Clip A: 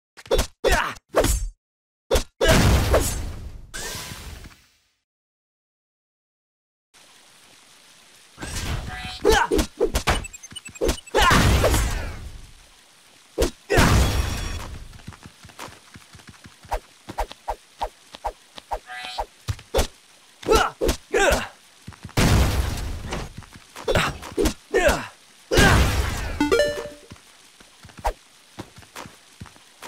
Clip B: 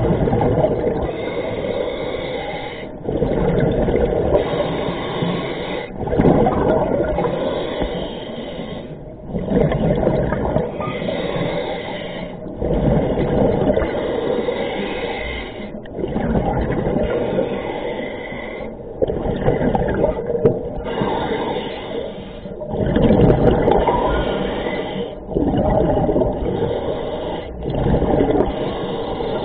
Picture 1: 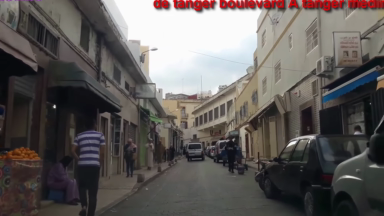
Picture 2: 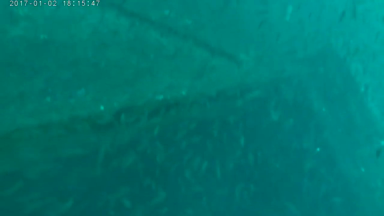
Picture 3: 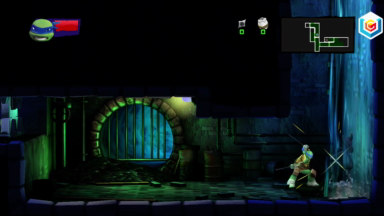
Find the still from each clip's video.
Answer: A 3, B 2